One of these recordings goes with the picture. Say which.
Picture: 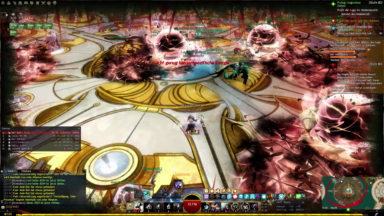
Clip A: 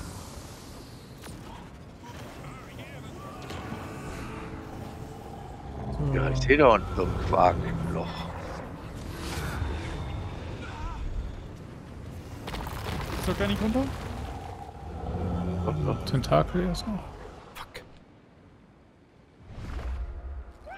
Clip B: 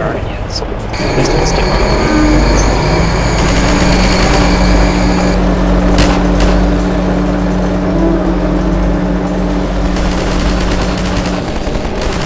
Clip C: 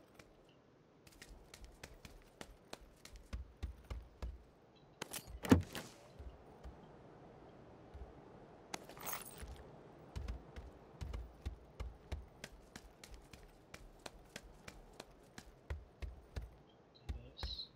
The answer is A